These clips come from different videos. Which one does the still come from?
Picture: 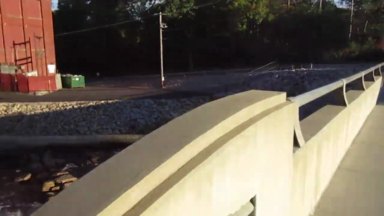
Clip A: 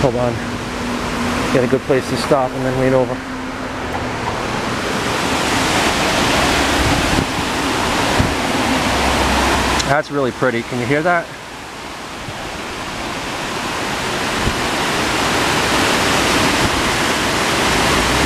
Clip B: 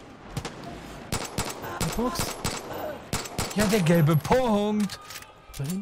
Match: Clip A